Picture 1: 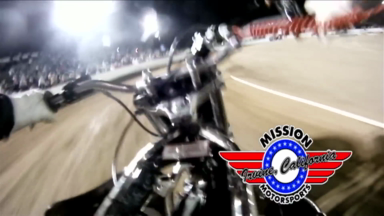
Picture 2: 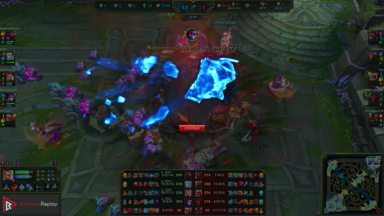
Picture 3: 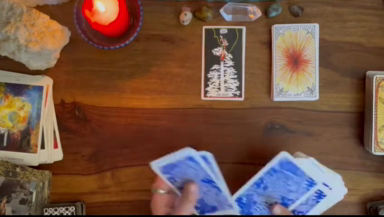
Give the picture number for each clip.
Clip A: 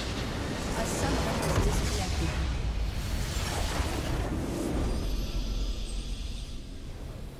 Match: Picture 2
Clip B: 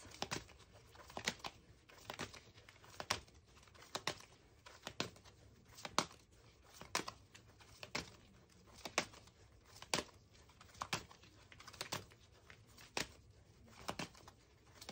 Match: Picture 3